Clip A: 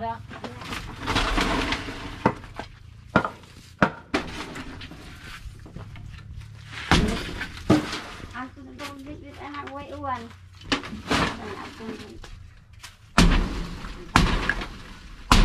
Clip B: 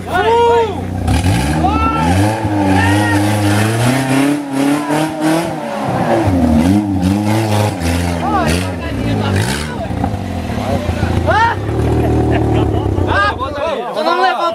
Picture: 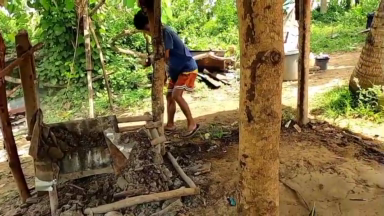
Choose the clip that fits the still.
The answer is A